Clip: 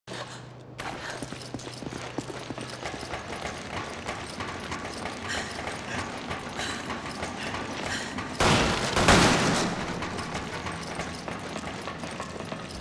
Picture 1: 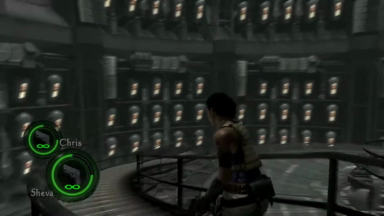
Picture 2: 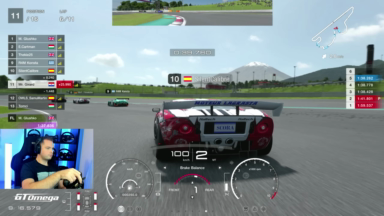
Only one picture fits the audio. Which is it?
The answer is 1